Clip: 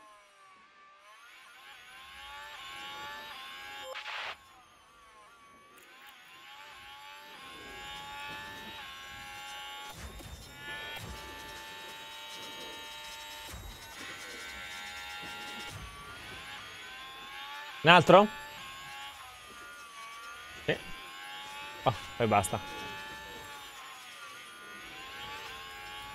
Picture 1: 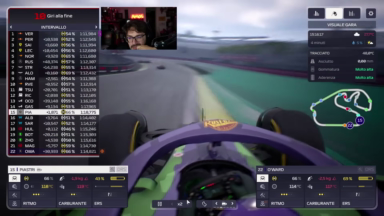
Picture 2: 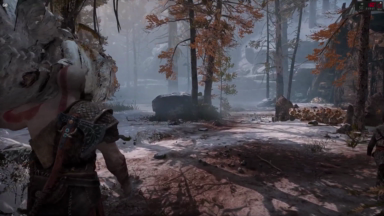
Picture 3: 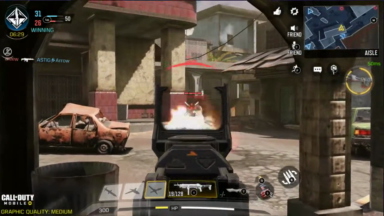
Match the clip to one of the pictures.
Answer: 1